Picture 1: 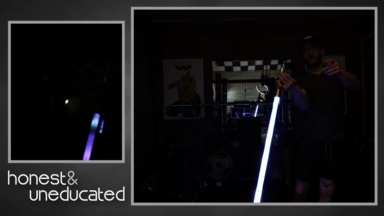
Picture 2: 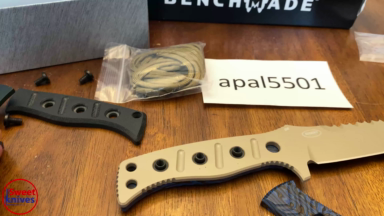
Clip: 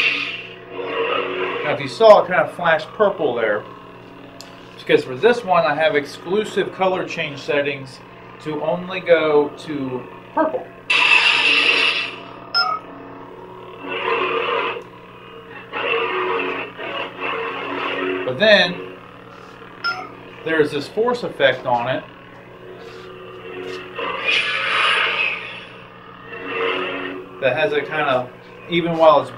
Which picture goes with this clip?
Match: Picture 1